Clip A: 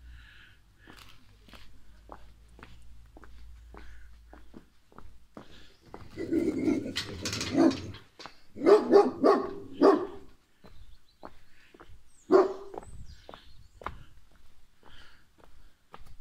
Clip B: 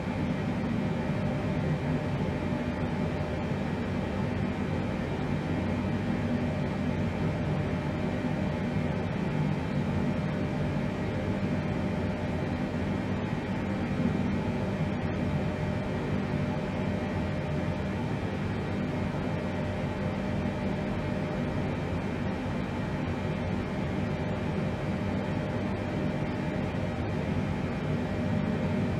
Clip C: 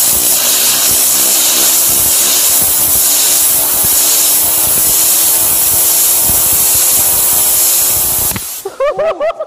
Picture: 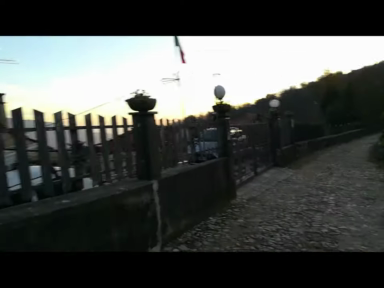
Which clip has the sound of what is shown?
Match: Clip A